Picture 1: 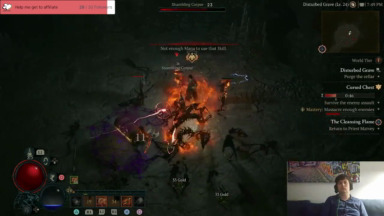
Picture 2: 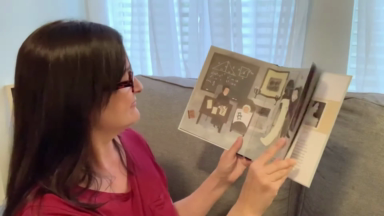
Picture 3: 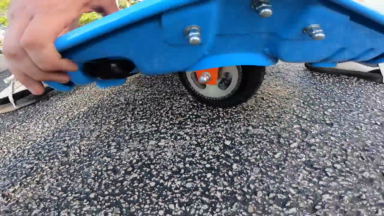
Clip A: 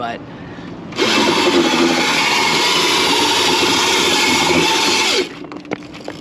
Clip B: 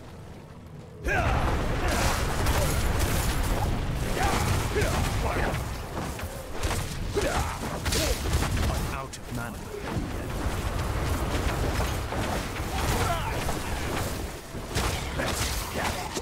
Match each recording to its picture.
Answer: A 3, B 1